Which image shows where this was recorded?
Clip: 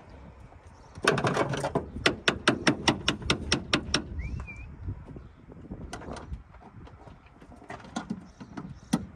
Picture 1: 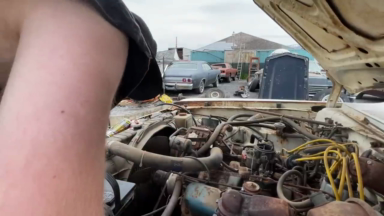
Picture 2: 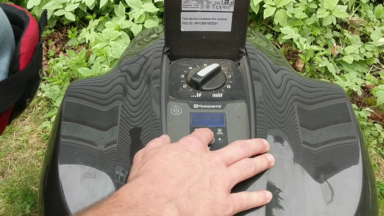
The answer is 1